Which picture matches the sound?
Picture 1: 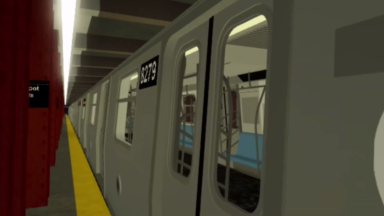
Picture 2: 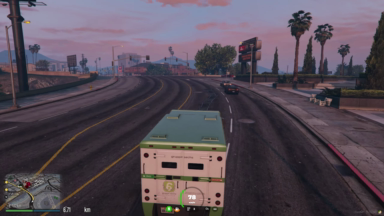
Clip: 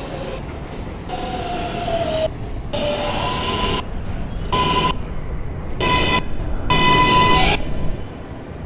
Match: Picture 1